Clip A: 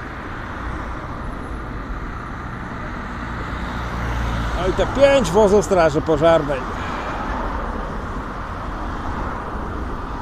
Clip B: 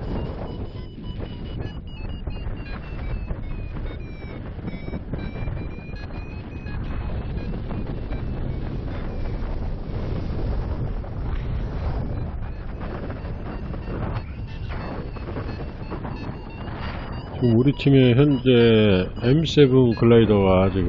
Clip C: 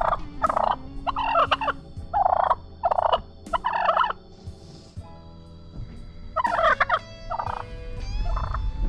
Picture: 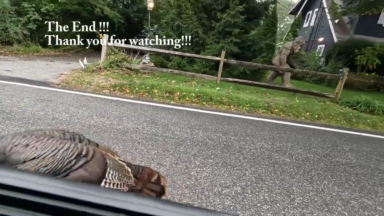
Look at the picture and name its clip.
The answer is C